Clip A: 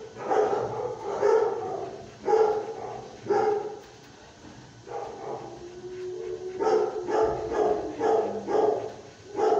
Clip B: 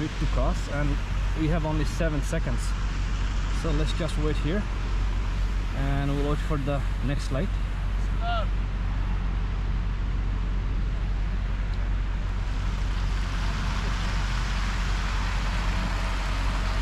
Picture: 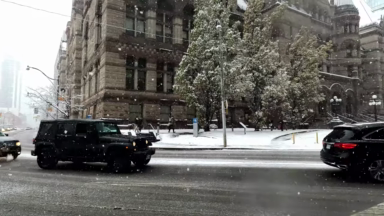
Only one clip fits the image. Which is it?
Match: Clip B